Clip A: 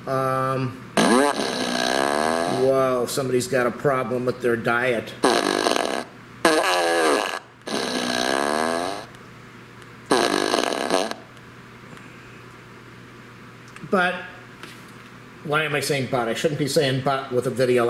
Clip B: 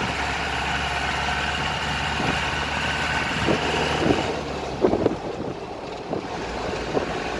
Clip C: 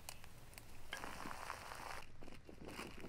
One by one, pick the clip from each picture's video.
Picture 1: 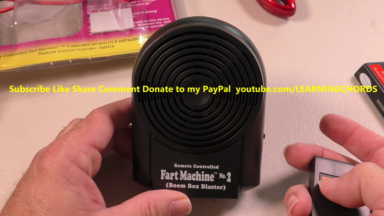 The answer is A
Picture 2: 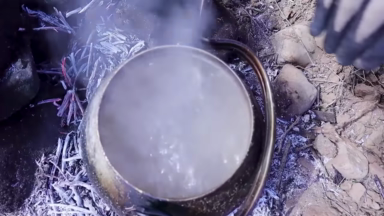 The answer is C